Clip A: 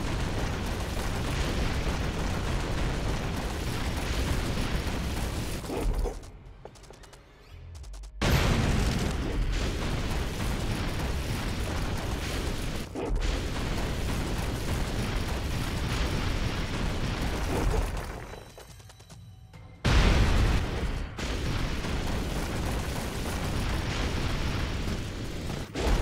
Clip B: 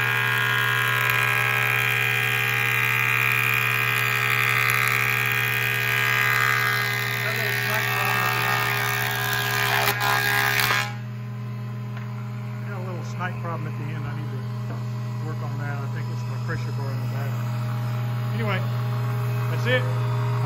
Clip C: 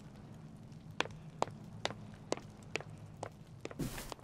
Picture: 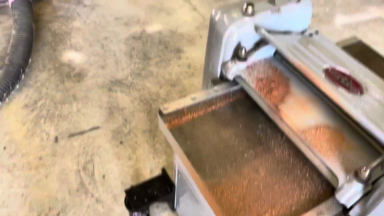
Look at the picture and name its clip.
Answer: B